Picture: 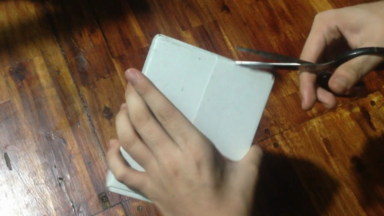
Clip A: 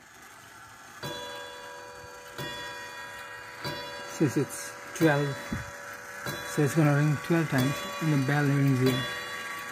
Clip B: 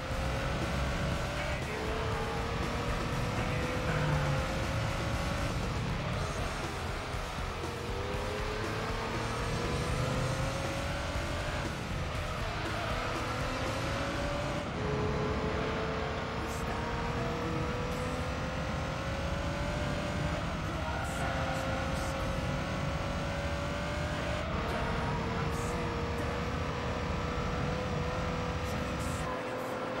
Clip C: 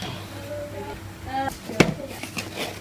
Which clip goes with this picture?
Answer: C